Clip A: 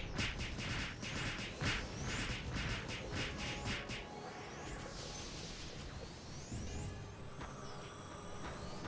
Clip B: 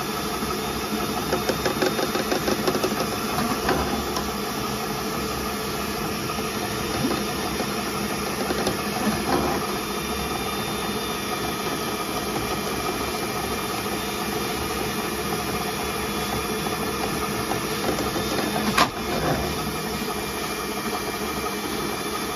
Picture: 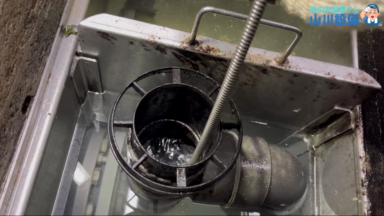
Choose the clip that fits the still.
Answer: B